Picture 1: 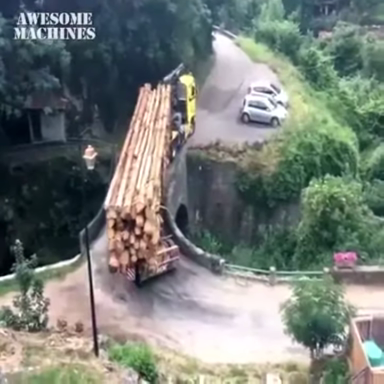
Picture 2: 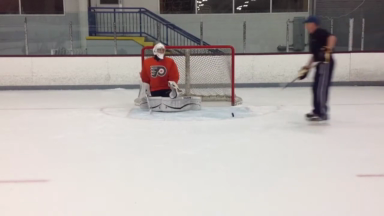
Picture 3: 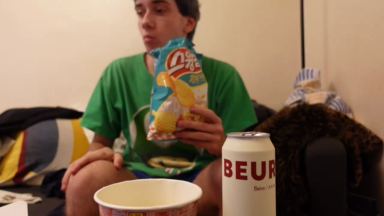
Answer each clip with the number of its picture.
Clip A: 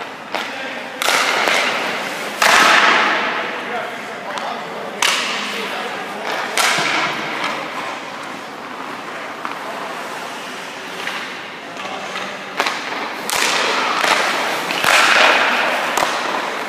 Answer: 2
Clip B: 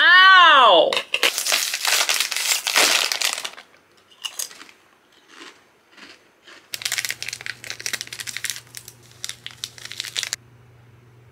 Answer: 3